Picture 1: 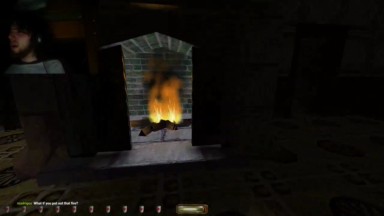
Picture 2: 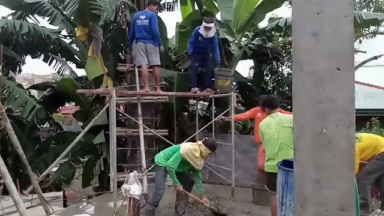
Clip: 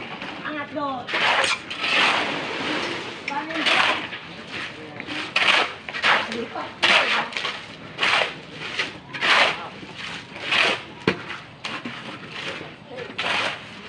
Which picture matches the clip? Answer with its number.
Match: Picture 2